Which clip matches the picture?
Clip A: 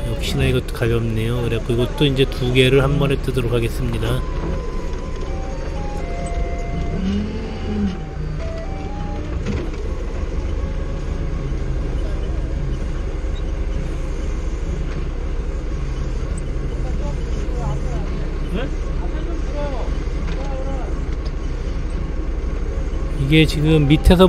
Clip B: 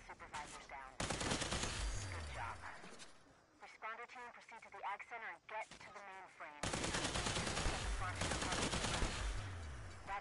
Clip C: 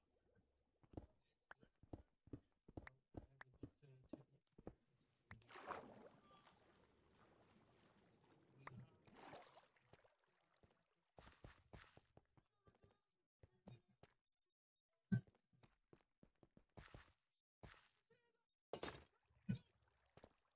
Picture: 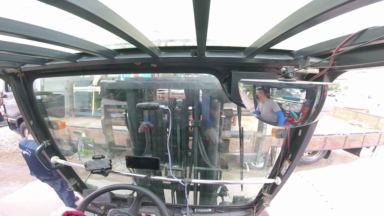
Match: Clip A